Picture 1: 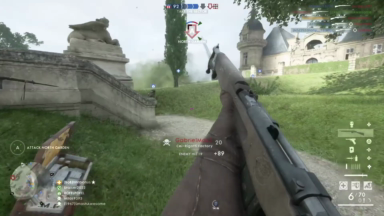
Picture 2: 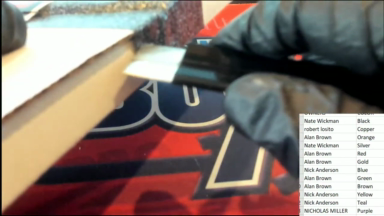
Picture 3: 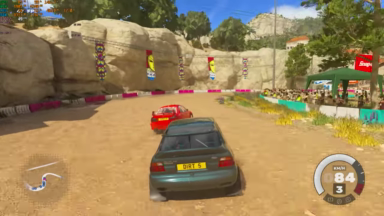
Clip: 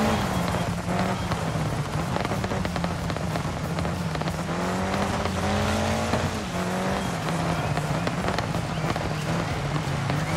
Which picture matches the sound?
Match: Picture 3